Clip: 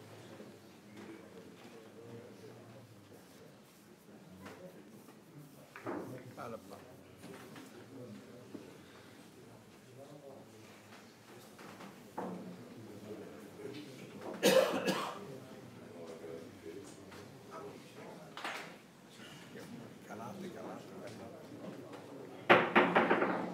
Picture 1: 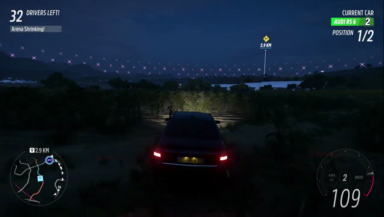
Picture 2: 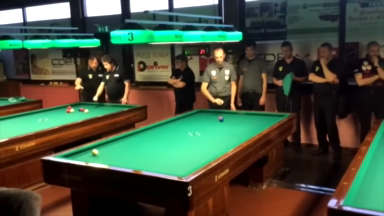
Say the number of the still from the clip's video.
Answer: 2